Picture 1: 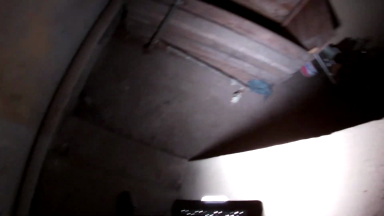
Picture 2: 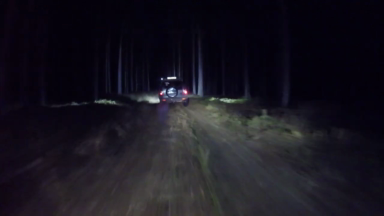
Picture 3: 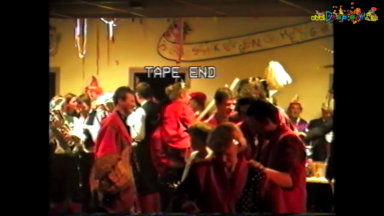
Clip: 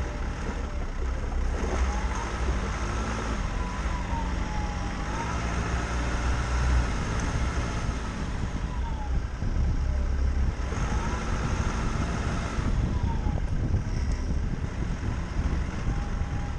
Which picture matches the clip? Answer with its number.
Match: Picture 2